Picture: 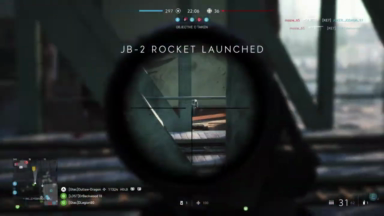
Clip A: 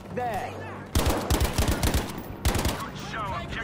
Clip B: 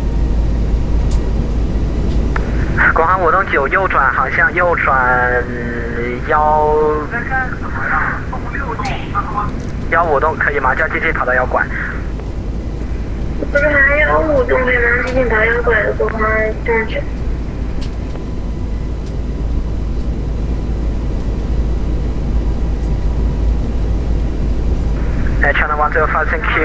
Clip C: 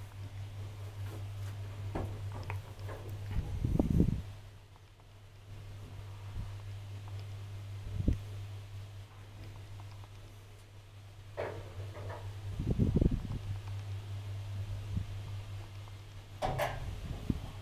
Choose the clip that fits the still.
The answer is A